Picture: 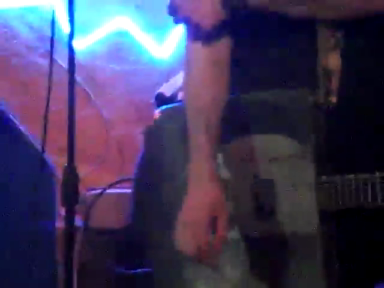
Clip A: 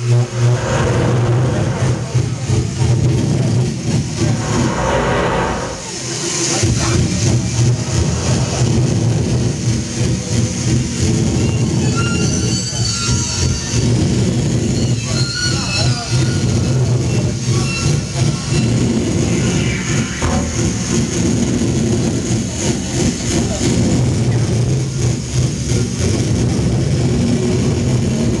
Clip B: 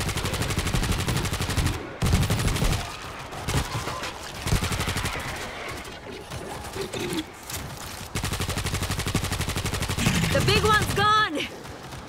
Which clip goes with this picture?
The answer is A